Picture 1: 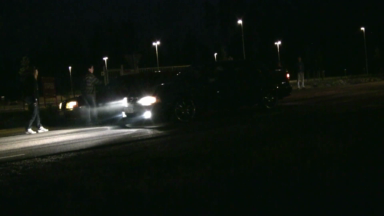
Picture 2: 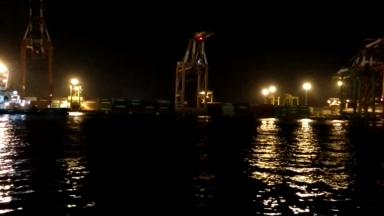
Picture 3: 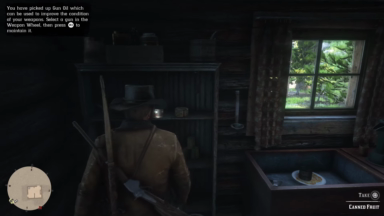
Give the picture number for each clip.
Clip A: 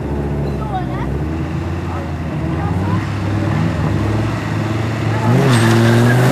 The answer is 1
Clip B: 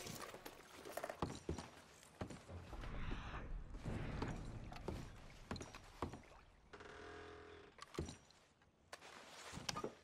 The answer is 3